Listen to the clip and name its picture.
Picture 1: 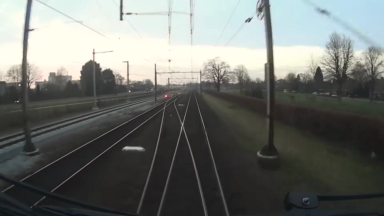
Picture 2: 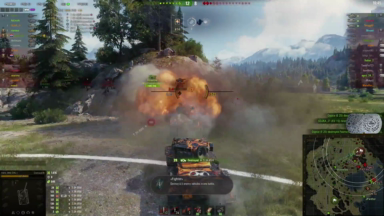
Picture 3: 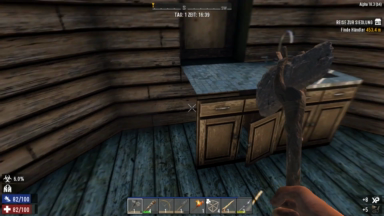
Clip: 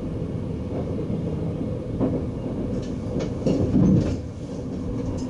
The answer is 1